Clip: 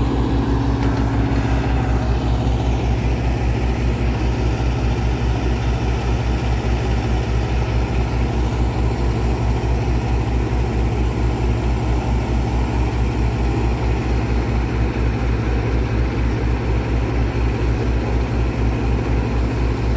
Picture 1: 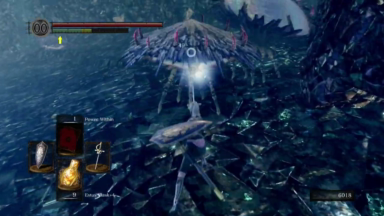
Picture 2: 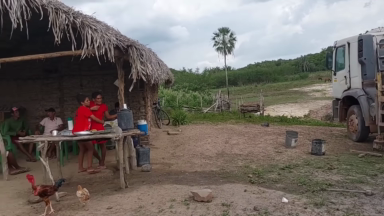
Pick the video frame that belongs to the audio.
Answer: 2